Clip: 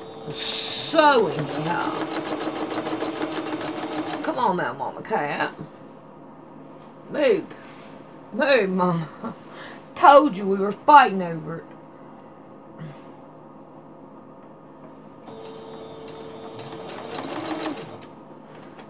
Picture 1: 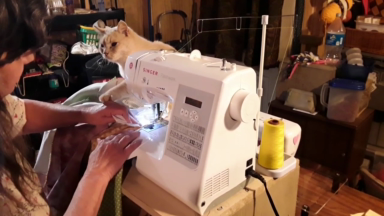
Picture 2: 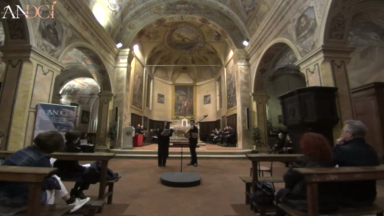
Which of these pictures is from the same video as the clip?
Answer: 1